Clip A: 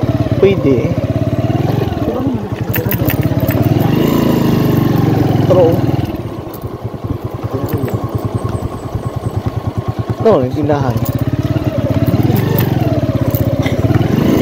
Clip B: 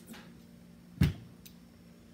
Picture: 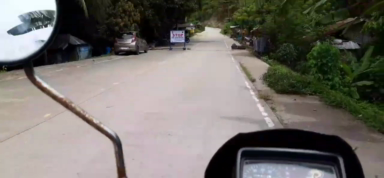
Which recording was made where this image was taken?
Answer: A